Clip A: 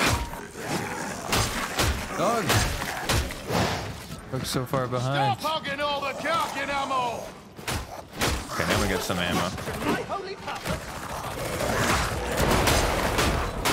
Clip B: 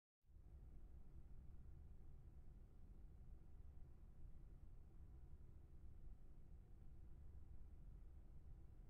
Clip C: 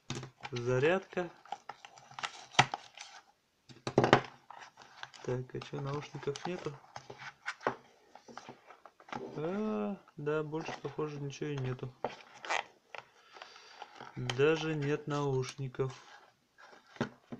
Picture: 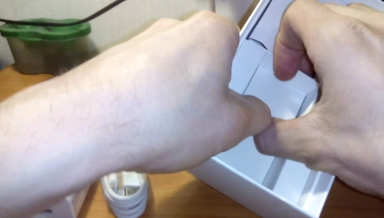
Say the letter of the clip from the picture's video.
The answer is C